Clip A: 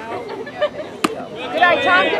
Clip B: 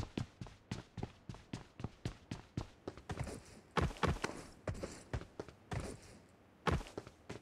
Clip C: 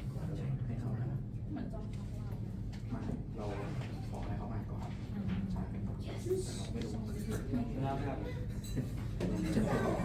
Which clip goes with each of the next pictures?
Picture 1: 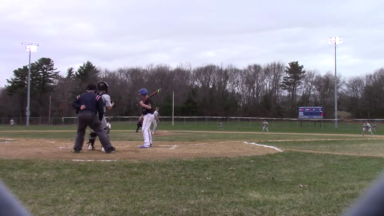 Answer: A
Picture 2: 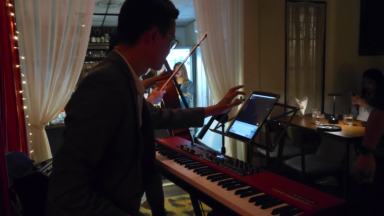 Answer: C